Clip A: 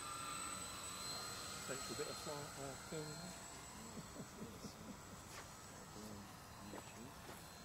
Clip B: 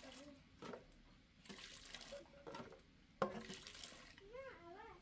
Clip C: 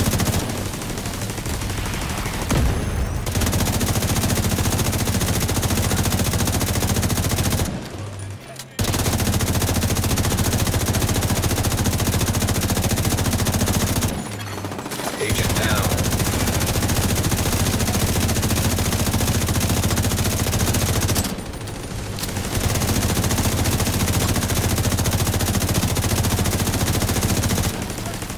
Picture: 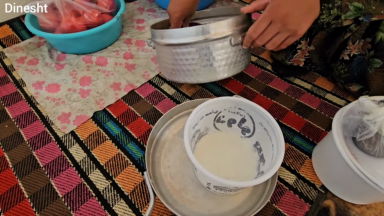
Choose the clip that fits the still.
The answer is B